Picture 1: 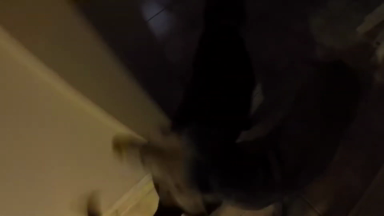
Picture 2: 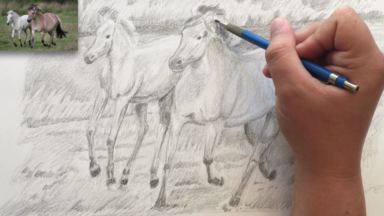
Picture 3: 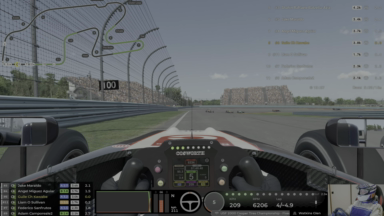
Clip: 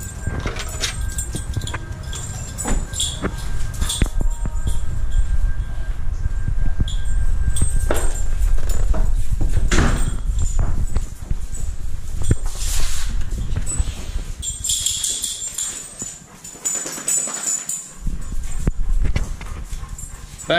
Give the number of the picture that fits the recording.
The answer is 1